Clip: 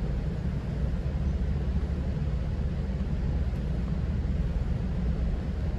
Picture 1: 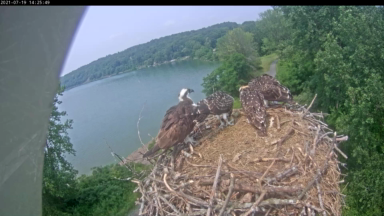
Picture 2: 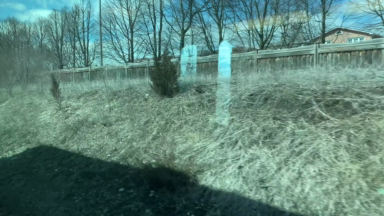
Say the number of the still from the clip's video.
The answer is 2